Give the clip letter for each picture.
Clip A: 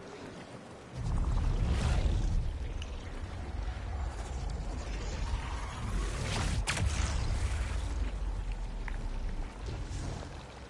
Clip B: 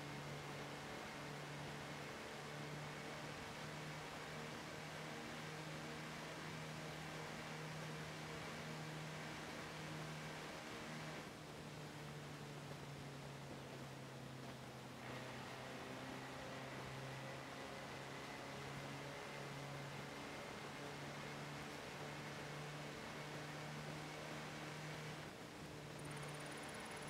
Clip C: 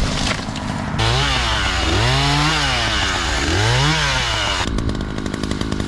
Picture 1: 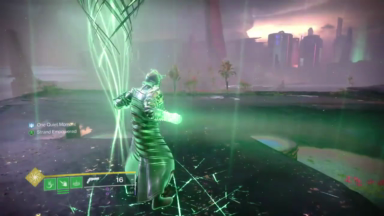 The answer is A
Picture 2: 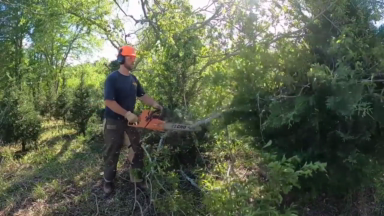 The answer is C